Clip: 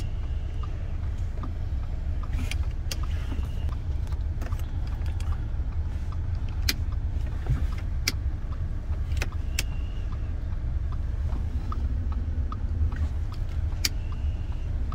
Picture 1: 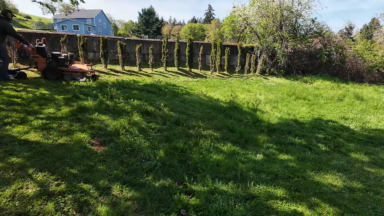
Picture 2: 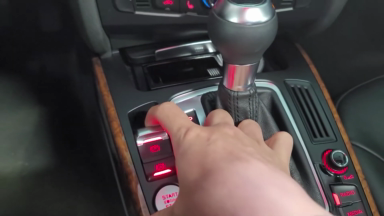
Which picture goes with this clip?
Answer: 2